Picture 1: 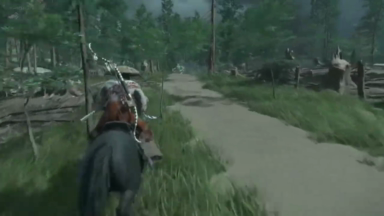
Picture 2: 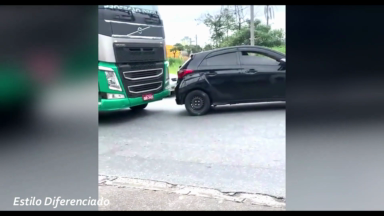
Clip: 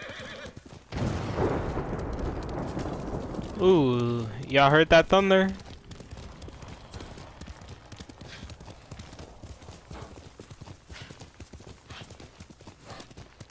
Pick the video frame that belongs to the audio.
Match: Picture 1